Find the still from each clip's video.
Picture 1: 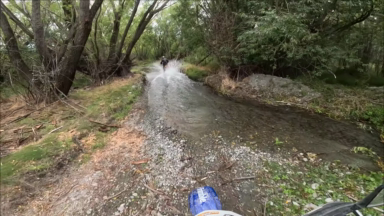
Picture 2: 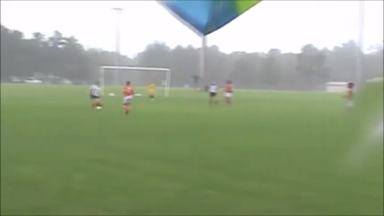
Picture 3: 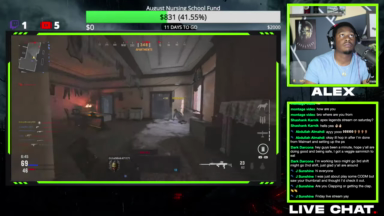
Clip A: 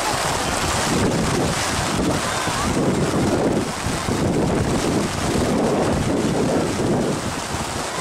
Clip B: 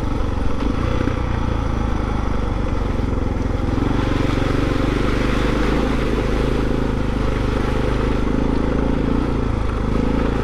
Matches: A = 2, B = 1